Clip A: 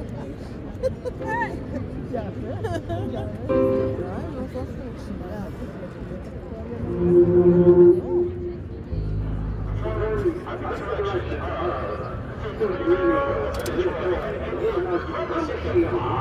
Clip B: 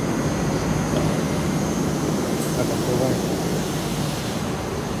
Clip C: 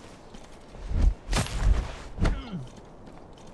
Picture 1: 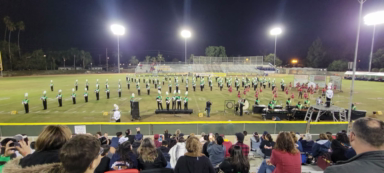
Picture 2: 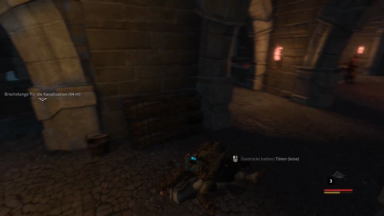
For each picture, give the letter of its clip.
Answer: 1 A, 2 C